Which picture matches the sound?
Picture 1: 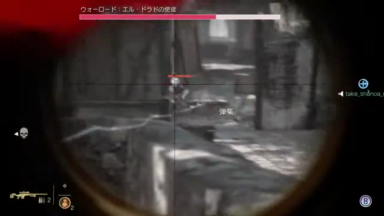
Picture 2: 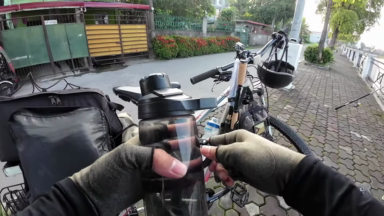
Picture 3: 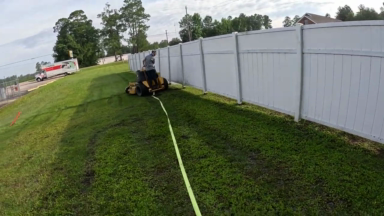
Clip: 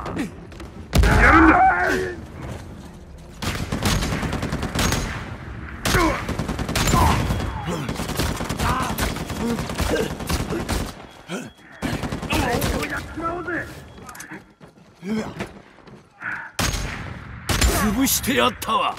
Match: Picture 1